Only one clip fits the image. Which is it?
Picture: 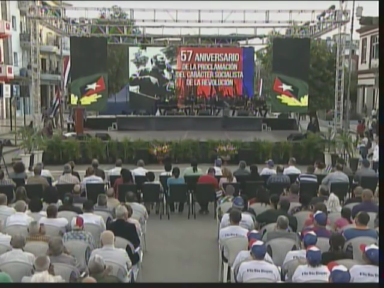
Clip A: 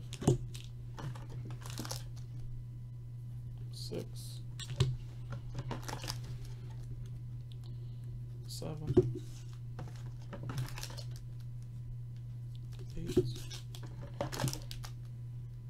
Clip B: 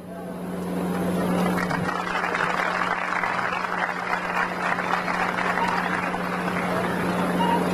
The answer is B